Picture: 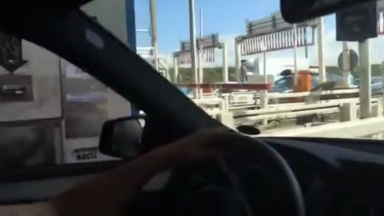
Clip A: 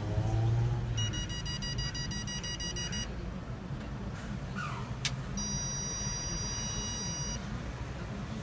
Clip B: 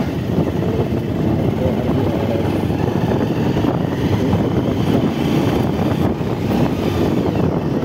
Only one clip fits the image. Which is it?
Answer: A